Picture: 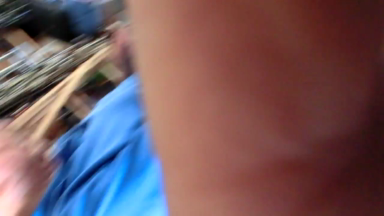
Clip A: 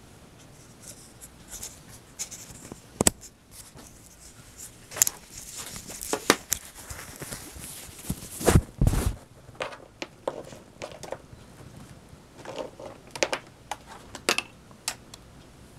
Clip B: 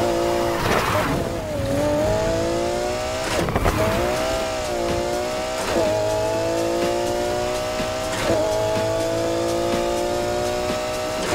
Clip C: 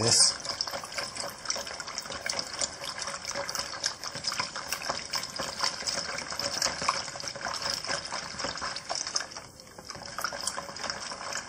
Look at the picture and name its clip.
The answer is A